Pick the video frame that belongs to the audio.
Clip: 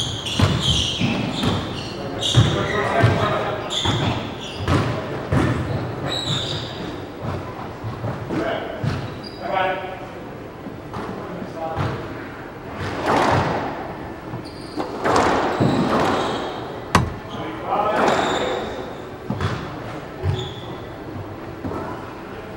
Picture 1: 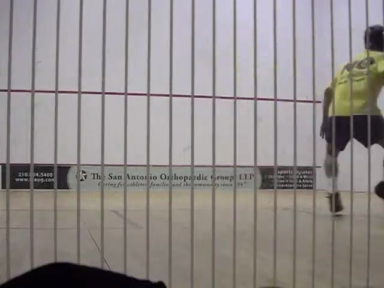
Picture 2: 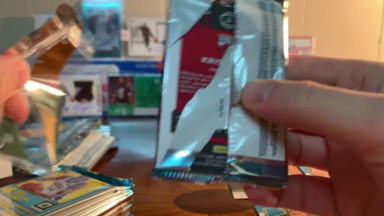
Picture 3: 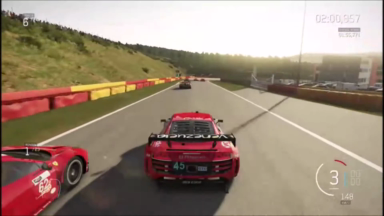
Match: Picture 1